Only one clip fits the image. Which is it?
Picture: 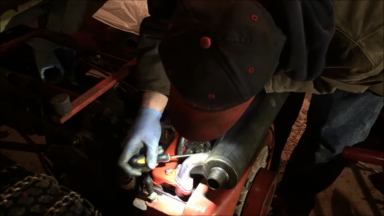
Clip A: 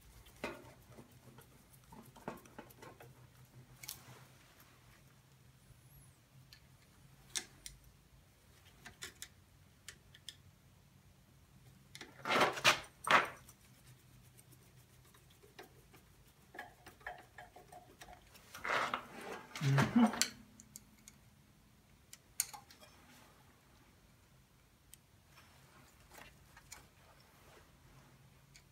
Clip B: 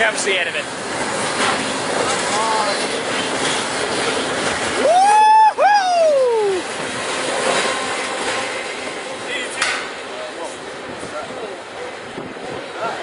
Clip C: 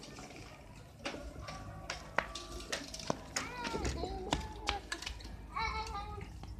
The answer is A